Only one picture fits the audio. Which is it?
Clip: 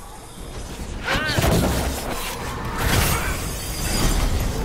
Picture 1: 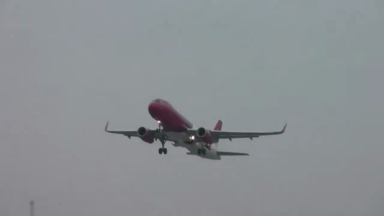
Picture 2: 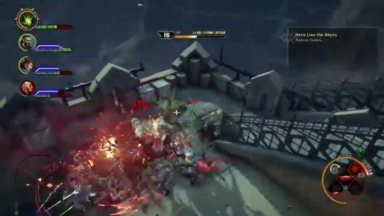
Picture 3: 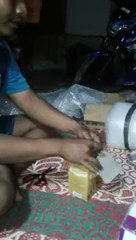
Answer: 2